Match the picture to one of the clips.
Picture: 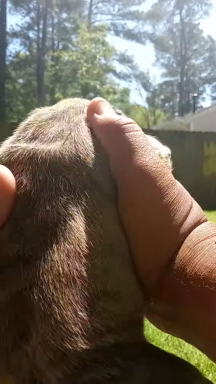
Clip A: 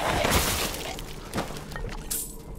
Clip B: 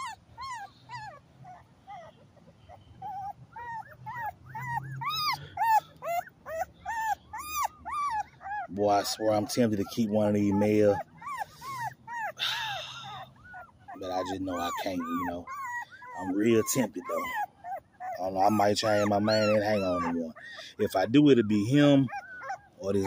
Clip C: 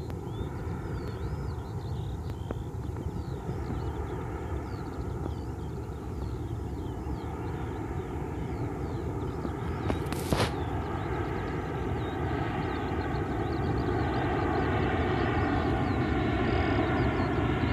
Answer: B